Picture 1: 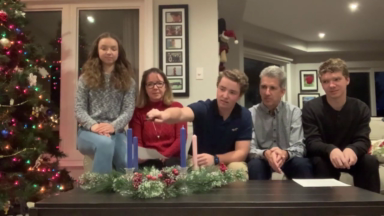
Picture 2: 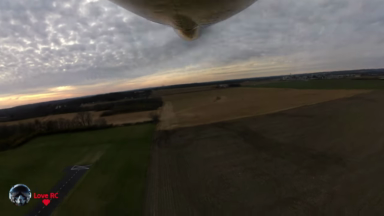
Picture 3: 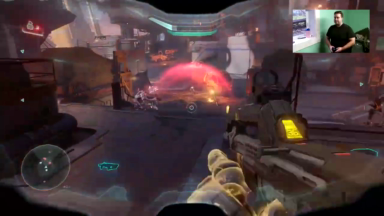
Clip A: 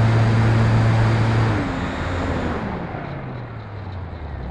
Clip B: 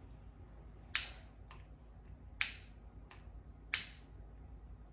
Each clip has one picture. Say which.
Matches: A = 2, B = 1